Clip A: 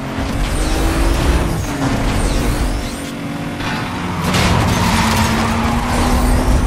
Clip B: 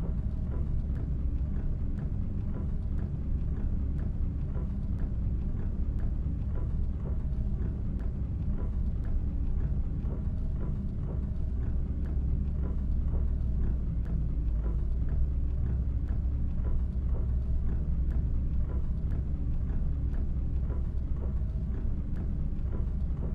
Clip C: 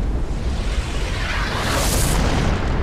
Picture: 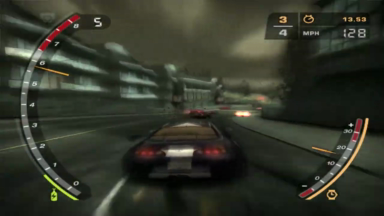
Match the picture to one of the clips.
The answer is A